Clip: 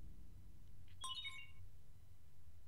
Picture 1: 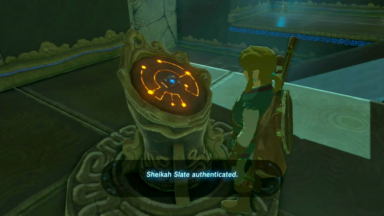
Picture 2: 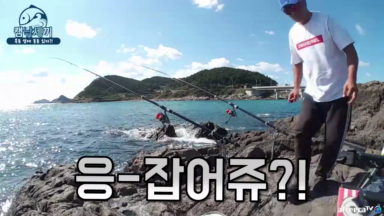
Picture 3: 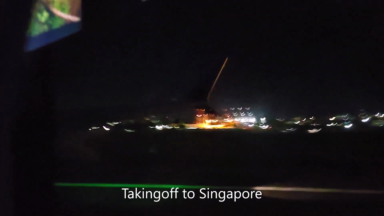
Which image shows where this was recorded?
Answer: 1